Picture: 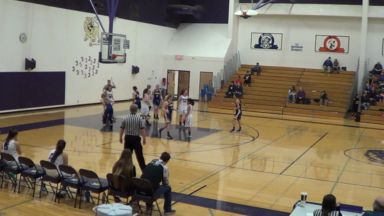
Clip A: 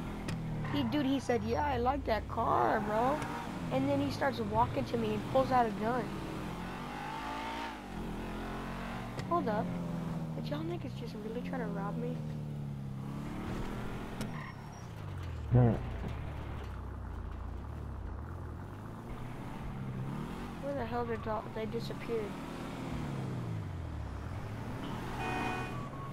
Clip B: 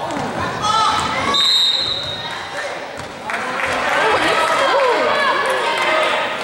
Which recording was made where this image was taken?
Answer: B